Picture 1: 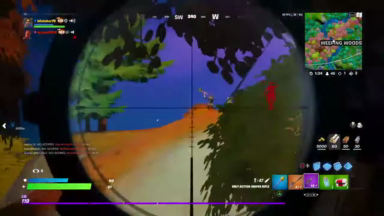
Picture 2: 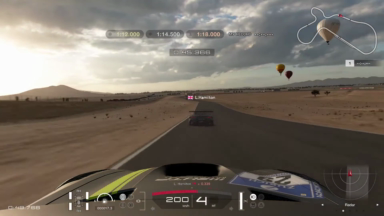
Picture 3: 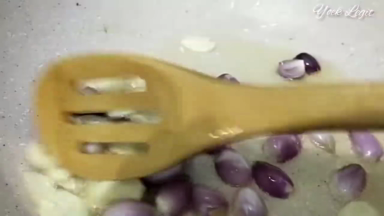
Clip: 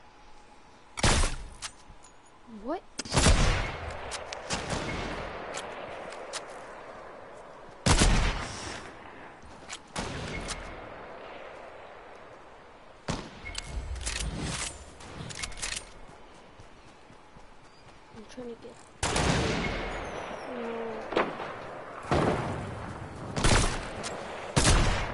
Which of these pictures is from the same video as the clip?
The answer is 1